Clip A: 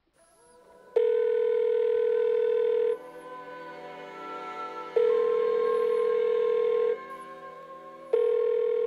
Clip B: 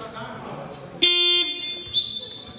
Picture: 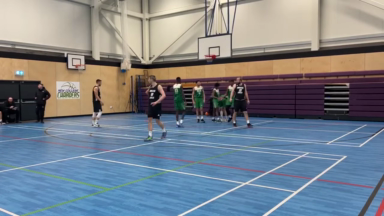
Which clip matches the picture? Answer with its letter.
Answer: B